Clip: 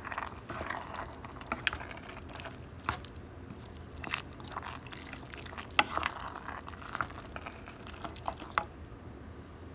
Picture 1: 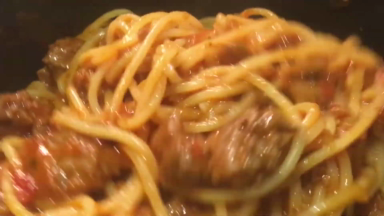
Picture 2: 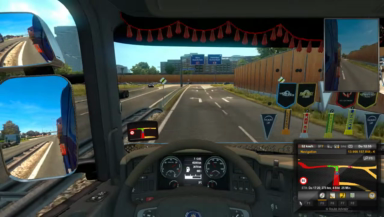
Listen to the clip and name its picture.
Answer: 1